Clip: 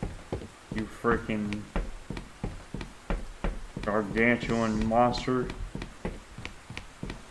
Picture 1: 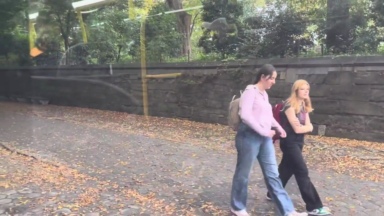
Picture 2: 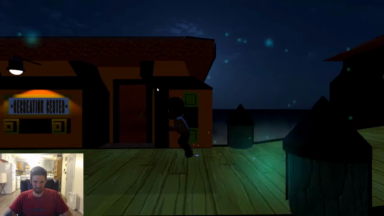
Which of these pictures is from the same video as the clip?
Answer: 2